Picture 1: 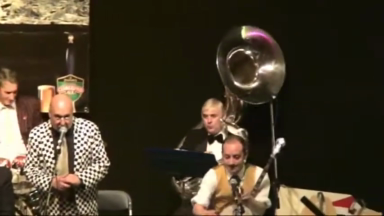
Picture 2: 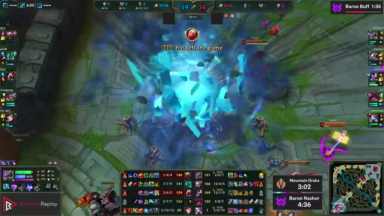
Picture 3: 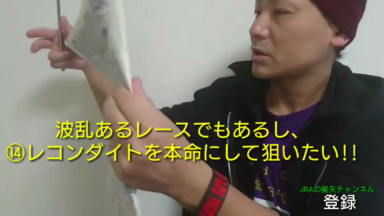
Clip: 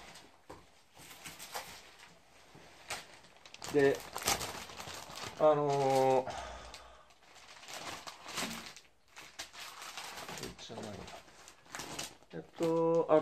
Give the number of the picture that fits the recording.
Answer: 3